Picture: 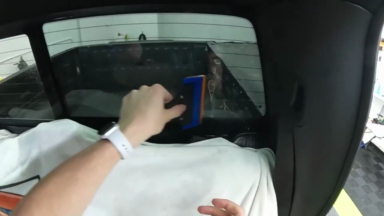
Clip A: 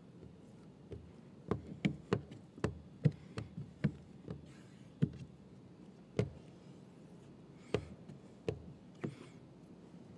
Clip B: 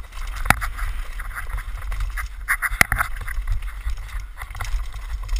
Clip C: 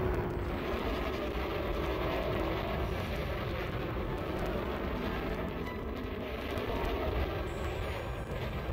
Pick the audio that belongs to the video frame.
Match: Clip A